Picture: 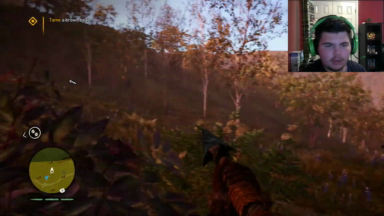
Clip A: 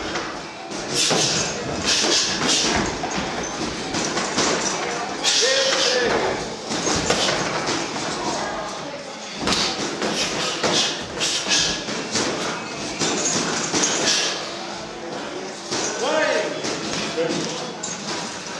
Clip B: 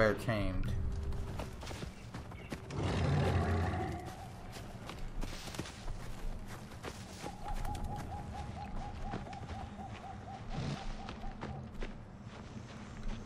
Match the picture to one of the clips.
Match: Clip B